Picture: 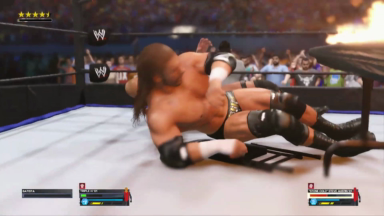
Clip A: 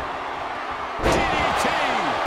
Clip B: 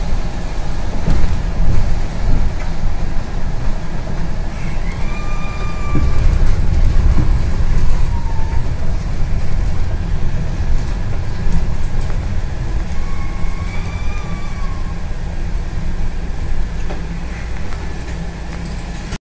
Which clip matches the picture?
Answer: A